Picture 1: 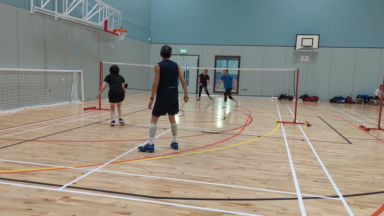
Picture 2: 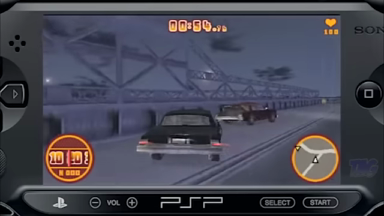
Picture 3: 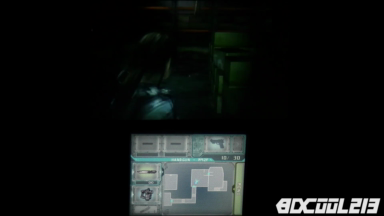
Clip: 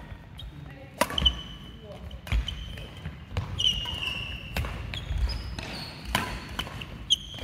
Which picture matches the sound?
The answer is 1